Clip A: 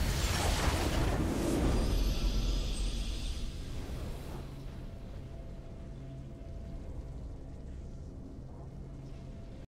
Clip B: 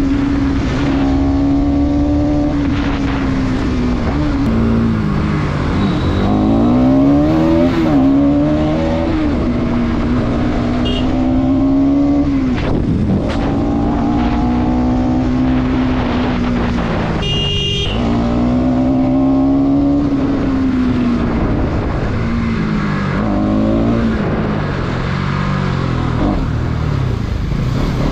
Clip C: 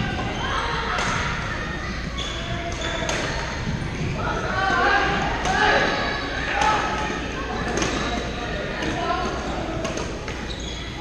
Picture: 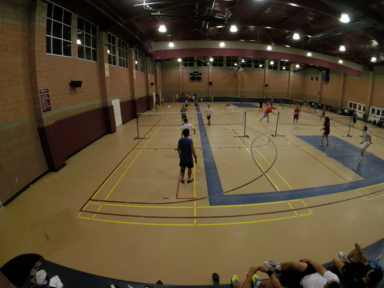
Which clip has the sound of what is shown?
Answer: C